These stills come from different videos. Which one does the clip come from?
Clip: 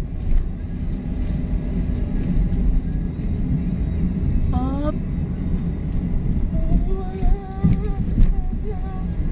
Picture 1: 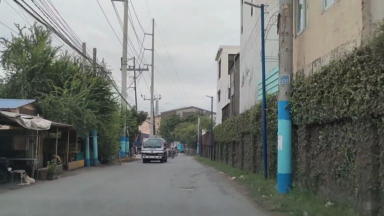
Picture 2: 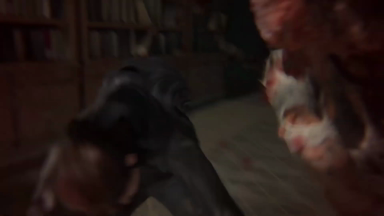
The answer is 1